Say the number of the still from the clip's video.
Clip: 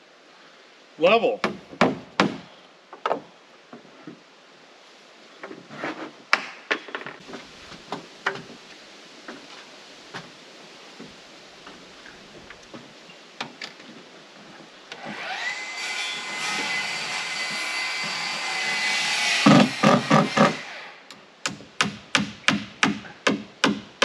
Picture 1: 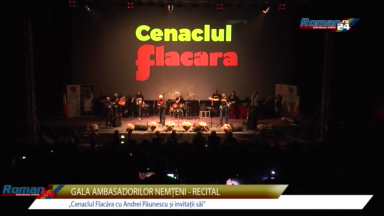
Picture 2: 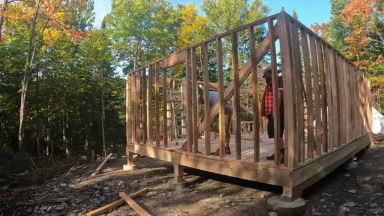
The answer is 2